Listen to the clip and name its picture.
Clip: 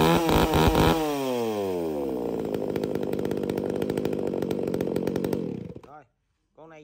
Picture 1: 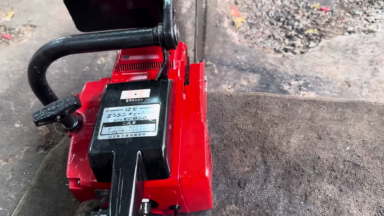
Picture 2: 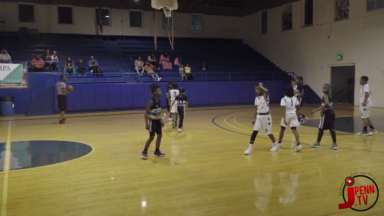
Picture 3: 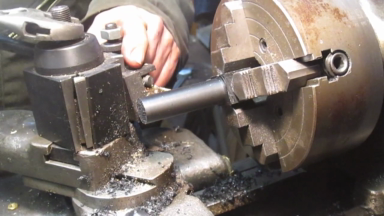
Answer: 1